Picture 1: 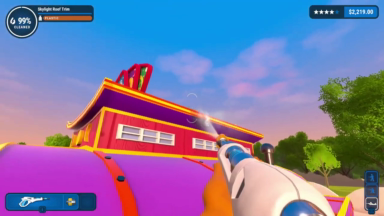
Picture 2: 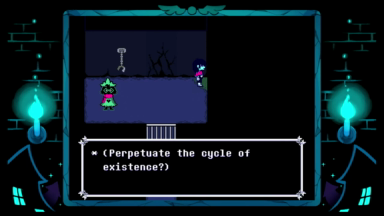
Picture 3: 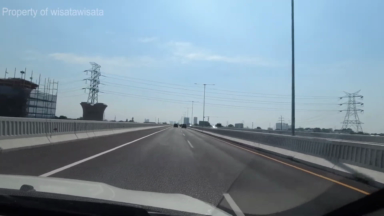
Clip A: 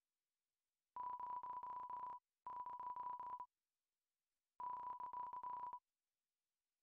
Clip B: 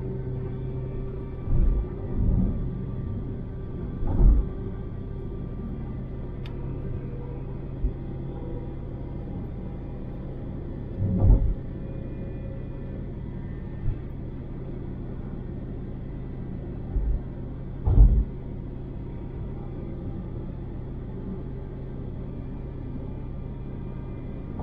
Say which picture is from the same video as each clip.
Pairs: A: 2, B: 3